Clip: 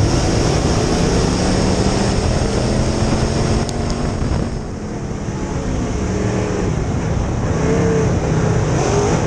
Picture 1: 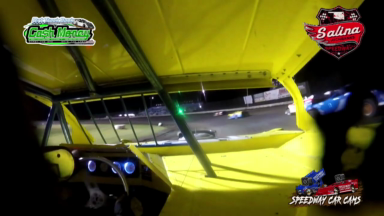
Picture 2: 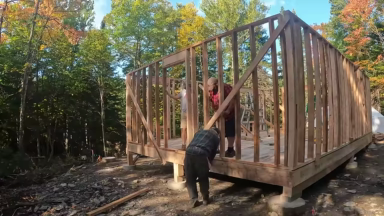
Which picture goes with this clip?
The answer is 1